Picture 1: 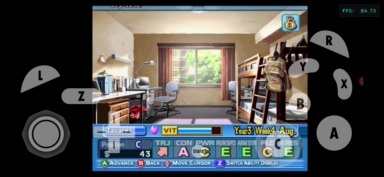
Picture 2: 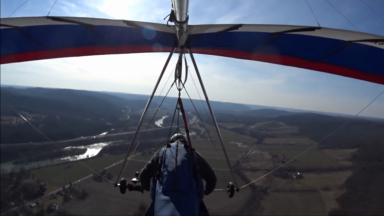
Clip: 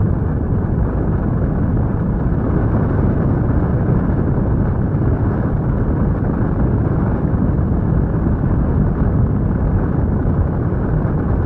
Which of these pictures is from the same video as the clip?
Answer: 2